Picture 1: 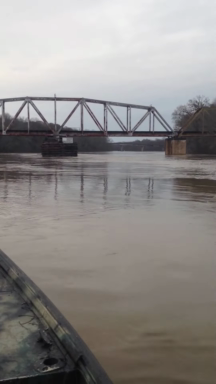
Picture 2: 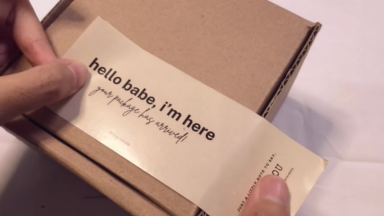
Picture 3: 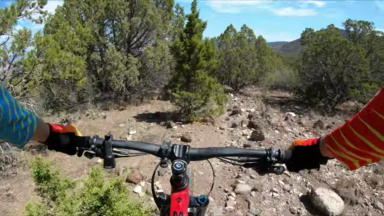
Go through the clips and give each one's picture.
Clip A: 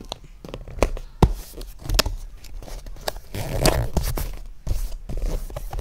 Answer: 2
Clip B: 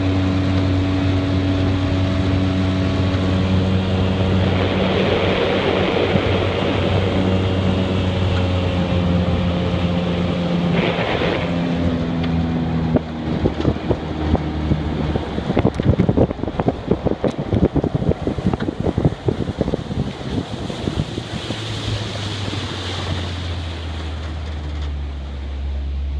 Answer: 1